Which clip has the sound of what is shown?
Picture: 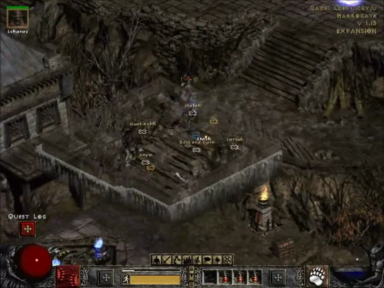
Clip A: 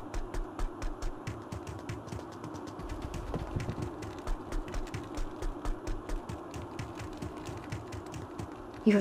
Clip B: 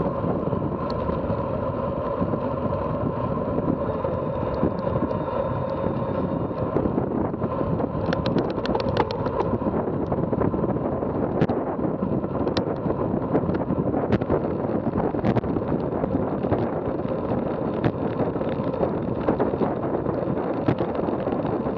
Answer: A